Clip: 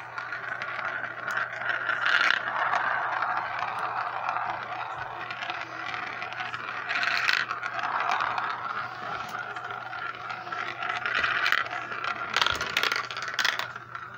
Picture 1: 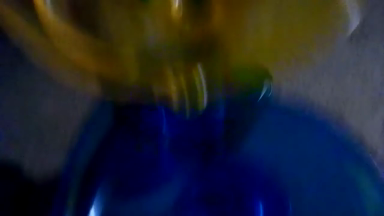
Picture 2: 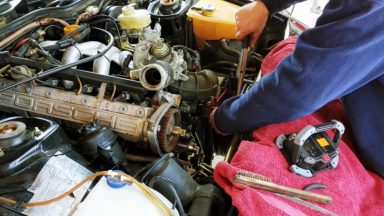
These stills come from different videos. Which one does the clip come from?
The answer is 1